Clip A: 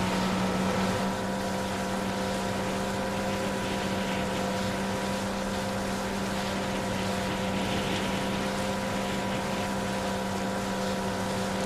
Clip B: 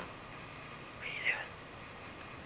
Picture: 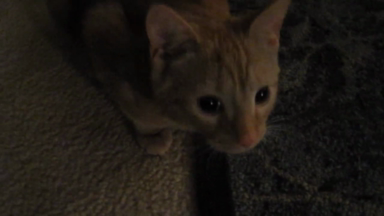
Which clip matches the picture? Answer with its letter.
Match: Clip B